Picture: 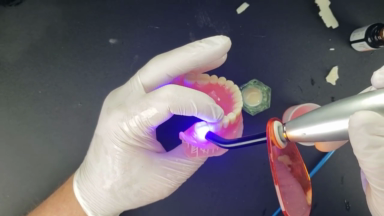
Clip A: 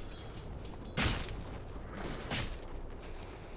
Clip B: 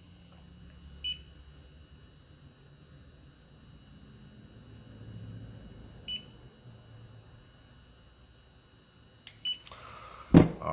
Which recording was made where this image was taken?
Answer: B